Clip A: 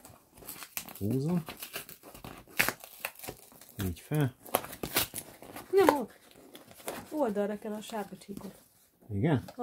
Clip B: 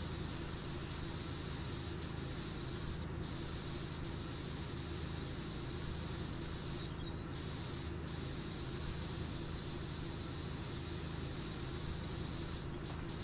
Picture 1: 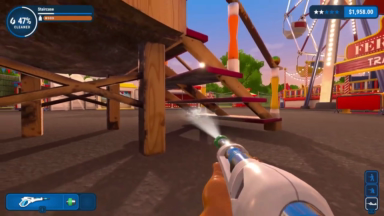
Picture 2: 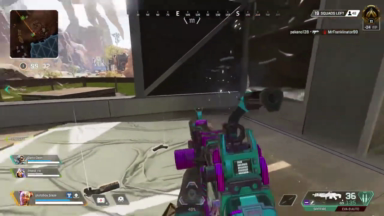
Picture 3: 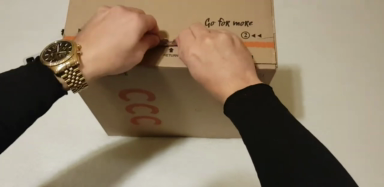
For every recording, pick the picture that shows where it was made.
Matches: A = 3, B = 1